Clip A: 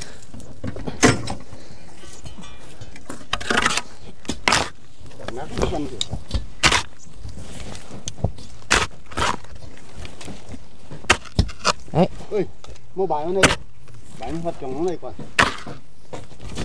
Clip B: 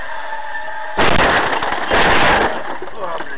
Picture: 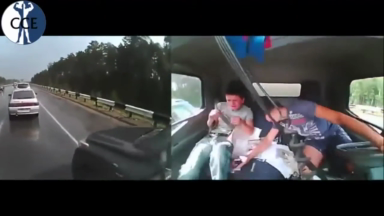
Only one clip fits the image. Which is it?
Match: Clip B